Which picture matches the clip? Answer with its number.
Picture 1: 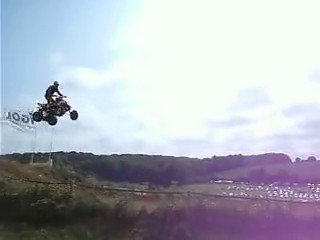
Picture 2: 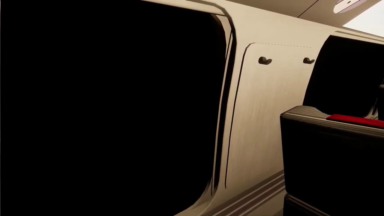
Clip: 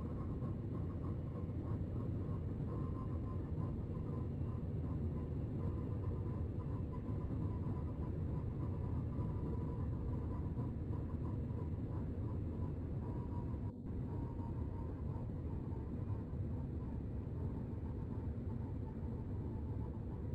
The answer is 2